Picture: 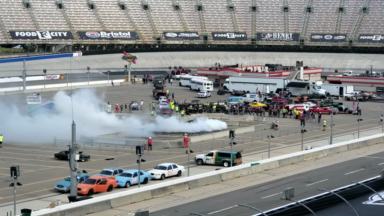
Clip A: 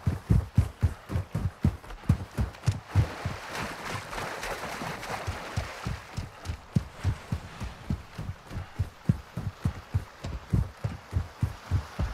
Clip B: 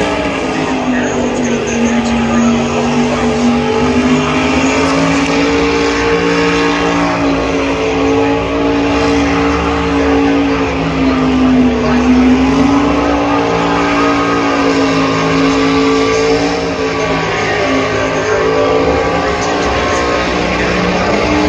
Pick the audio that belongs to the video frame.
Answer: B